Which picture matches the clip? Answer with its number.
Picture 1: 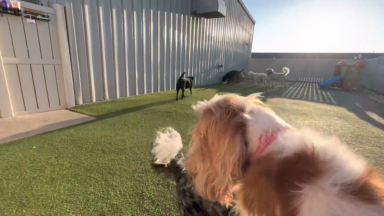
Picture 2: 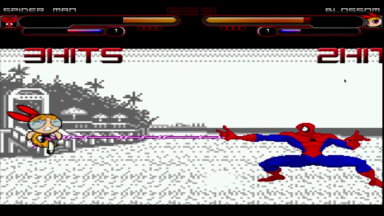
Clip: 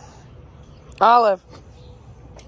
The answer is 1